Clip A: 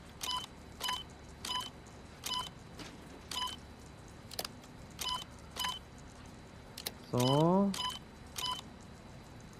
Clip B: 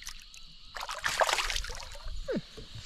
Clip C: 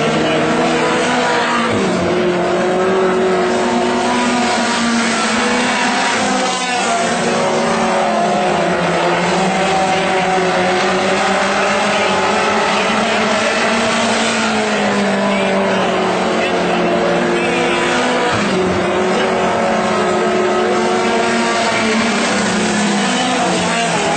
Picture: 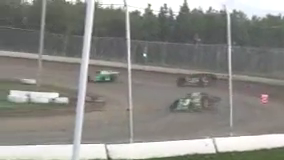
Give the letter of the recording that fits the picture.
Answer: C